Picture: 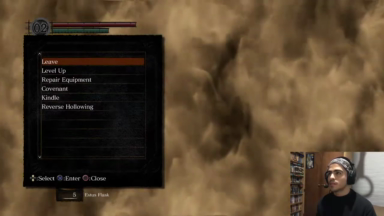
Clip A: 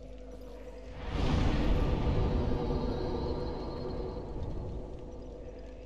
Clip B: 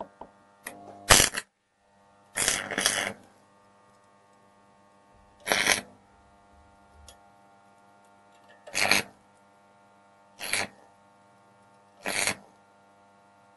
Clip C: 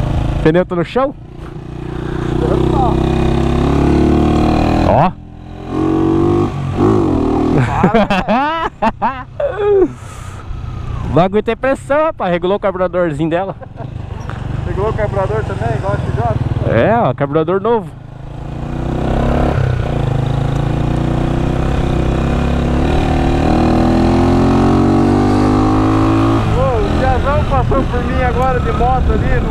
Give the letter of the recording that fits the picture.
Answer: A